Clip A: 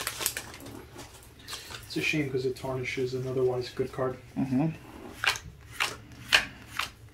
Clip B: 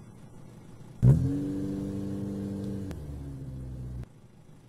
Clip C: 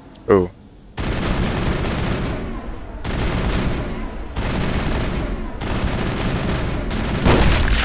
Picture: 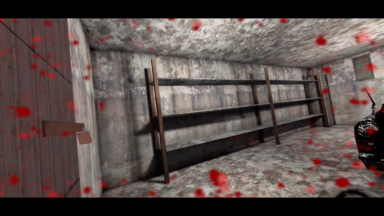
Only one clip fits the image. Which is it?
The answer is B